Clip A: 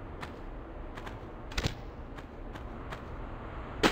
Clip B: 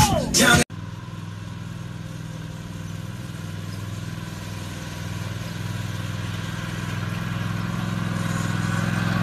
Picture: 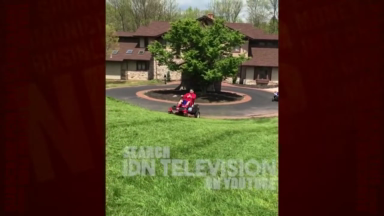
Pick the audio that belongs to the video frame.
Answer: B